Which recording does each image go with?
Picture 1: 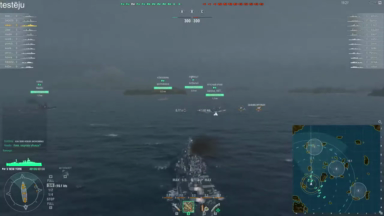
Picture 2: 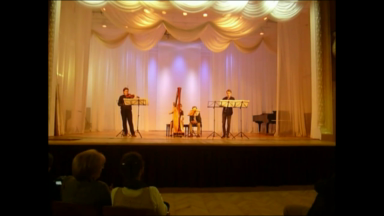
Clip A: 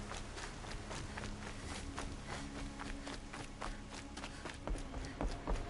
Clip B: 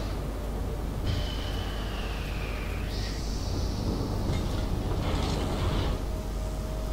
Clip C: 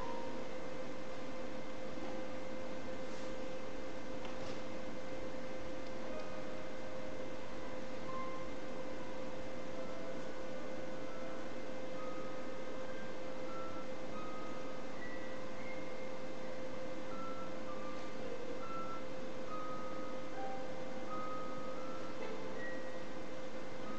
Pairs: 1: B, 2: C